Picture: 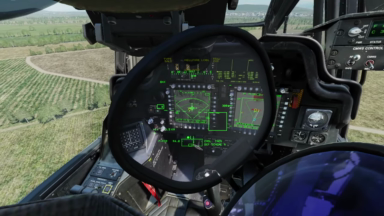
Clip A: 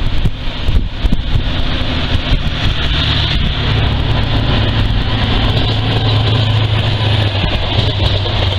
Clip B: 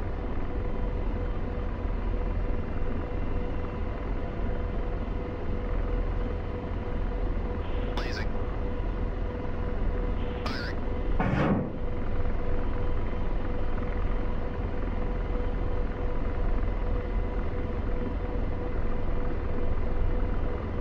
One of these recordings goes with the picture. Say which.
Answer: B